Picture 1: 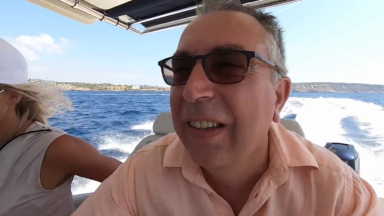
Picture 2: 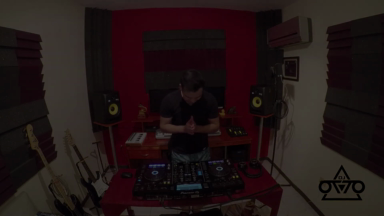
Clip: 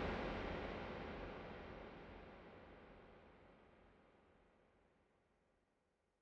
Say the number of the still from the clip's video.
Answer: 2